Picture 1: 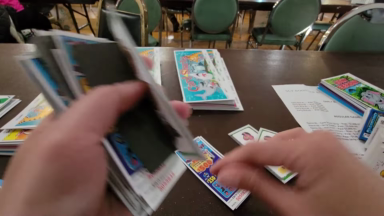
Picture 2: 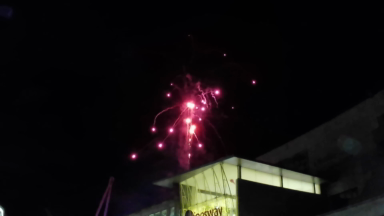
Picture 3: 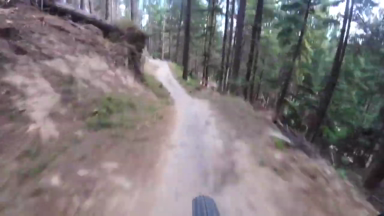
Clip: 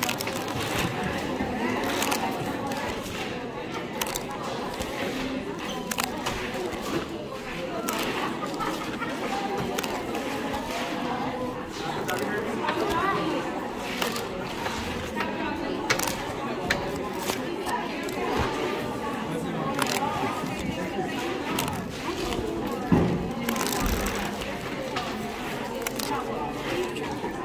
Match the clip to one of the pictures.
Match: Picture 1